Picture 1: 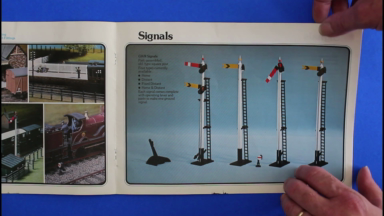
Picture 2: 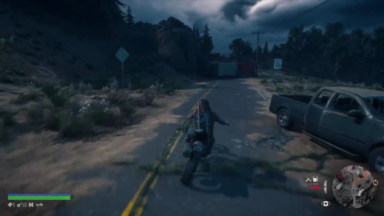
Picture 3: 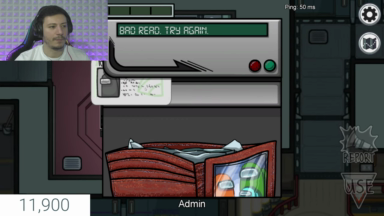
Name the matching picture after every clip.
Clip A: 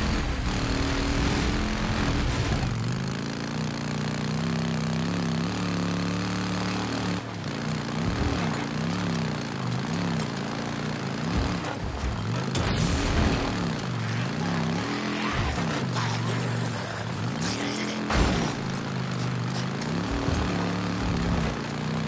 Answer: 2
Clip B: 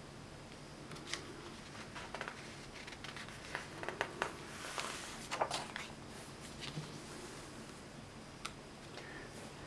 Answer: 1